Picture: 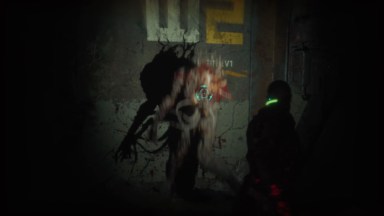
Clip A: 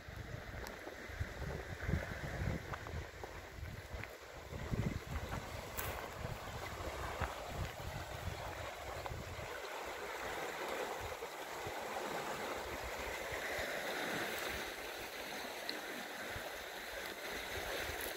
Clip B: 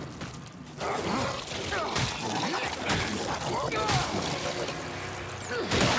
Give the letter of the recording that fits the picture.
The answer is B